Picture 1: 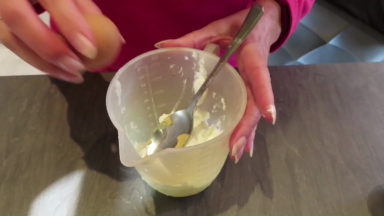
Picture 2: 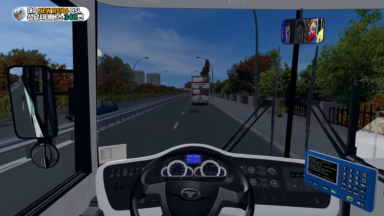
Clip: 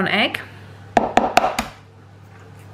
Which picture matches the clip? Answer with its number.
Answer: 1